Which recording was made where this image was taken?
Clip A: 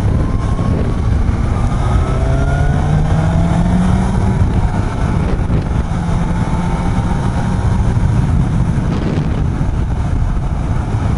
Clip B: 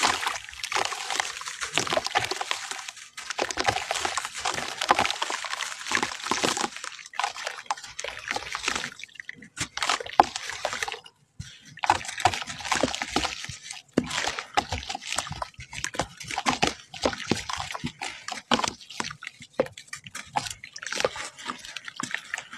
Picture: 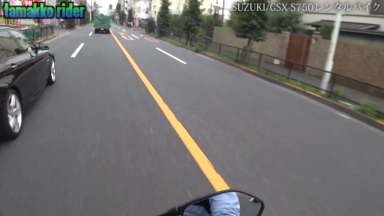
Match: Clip A